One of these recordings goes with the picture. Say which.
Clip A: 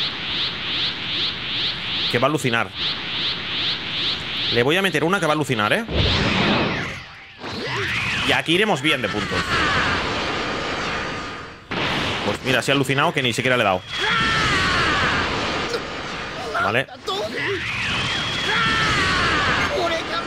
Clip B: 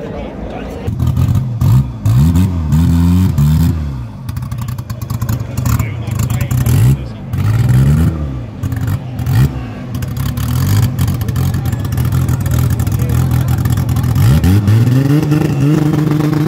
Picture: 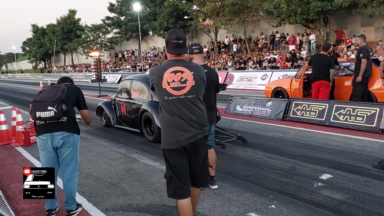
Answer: B